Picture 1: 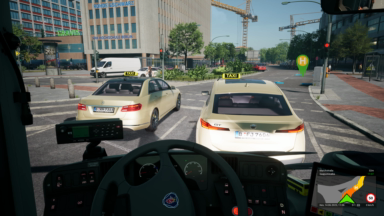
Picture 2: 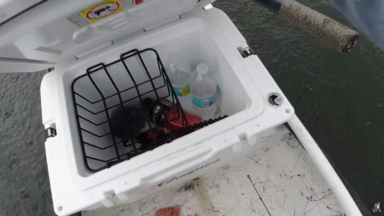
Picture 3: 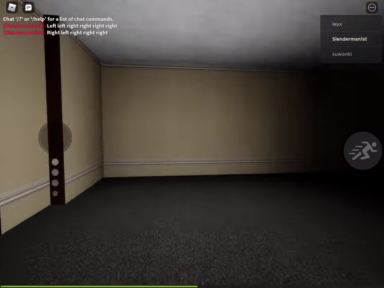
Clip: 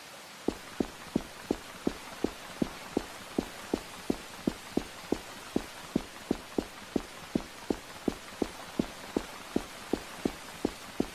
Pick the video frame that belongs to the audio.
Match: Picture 3